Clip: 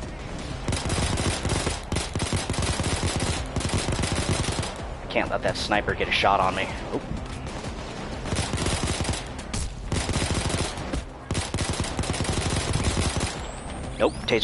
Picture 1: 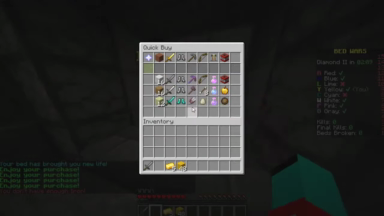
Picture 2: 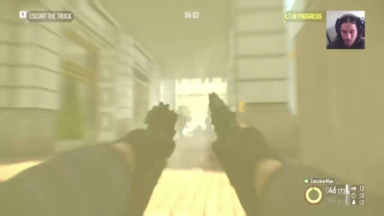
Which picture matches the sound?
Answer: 2